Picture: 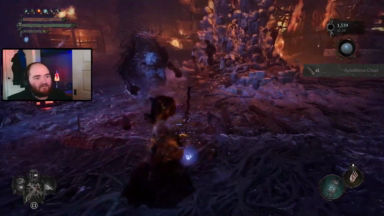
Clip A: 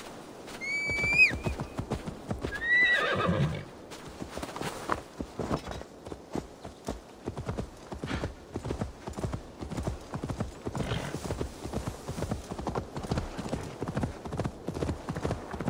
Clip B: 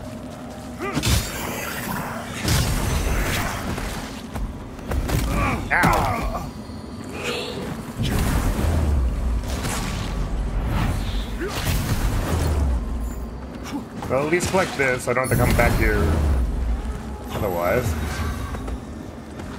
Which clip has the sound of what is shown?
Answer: B